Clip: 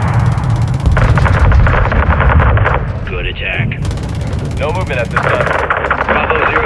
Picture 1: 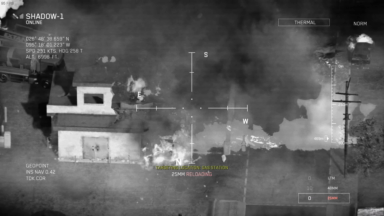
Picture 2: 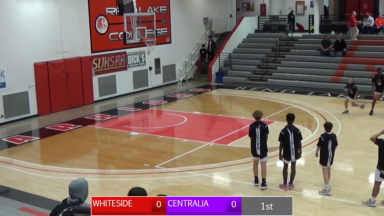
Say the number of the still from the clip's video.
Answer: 1